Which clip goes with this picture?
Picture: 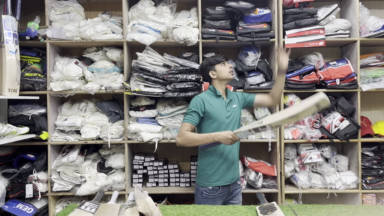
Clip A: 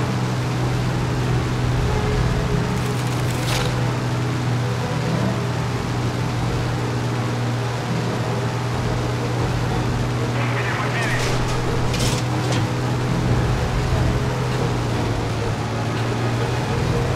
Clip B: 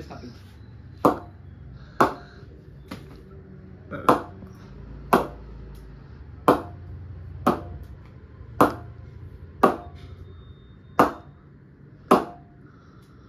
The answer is B